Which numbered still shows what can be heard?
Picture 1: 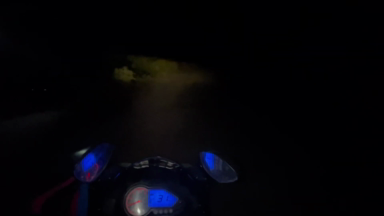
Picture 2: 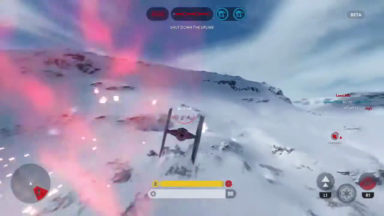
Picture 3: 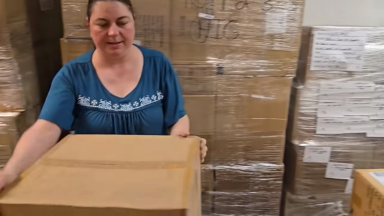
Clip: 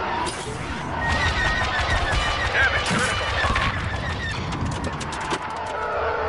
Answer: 2